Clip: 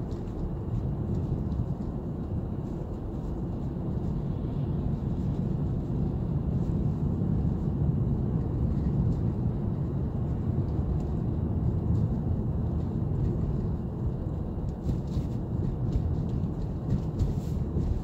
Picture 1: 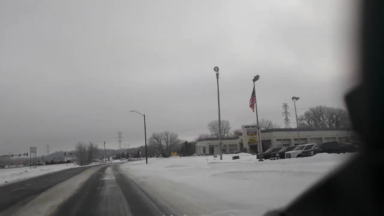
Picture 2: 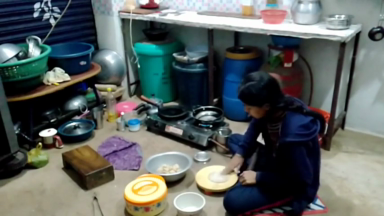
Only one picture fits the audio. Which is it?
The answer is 1